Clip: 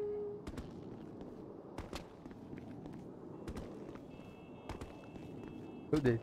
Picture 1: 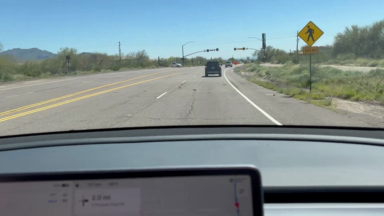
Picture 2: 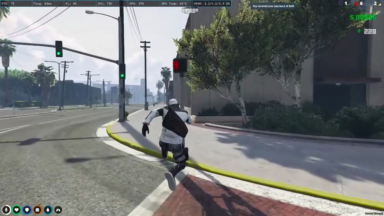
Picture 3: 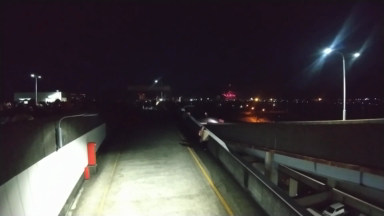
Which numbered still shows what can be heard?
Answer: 2